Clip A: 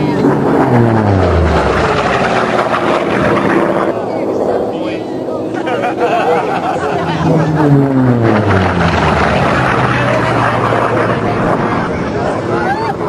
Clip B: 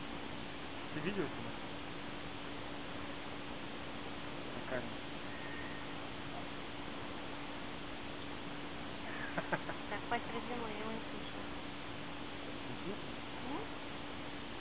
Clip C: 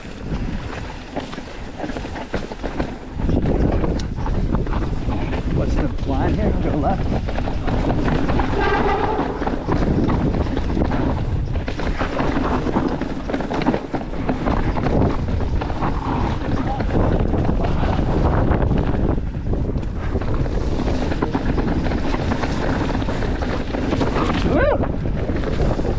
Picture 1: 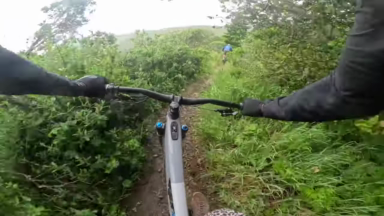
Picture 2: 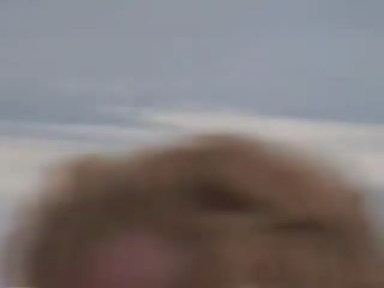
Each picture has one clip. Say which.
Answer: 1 C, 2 A